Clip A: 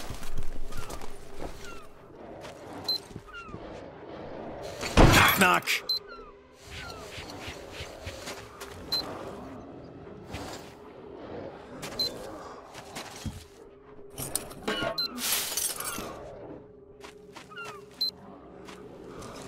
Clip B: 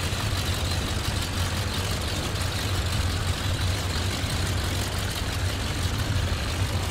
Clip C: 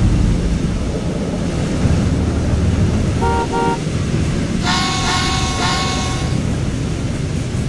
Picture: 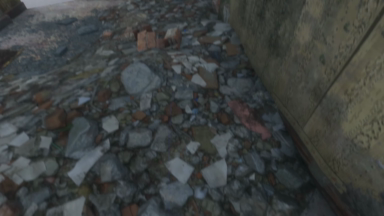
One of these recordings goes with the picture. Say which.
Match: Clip A